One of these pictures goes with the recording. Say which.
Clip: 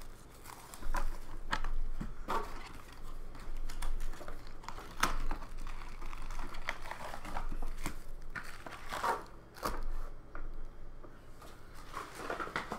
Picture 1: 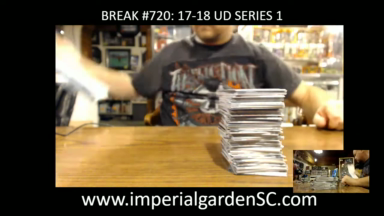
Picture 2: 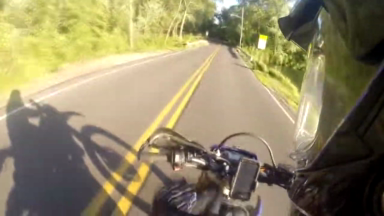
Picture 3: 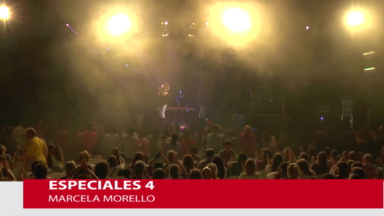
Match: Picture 1